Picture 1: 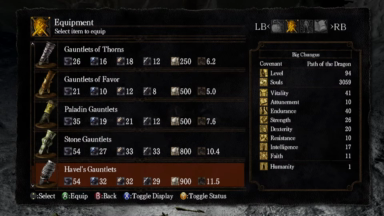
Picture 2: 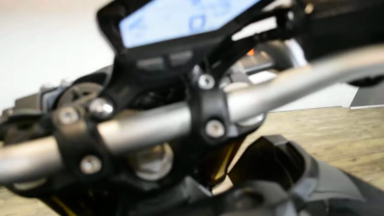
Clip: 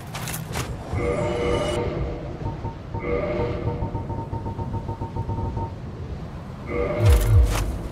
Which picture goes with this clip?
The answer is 1